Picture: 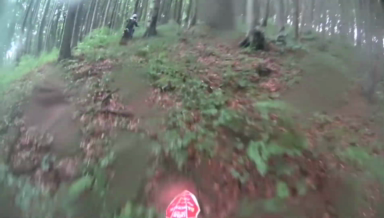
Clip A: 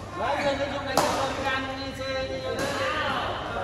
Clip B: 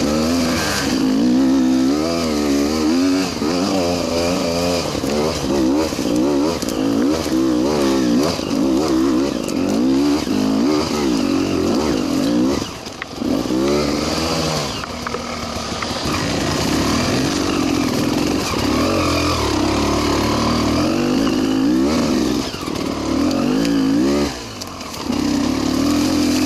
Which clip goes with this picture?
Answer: B